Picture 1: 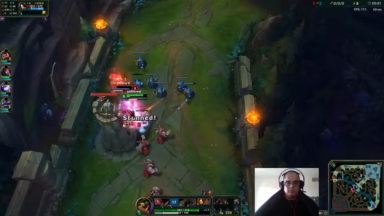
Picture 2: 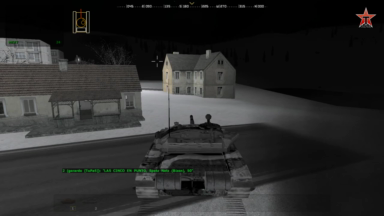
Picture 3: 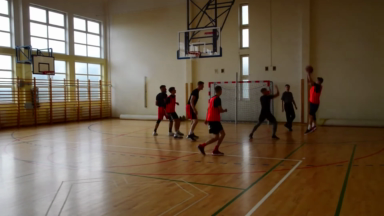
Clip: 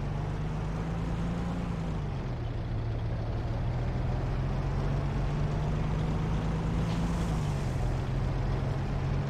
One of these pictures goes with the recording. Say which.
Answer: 2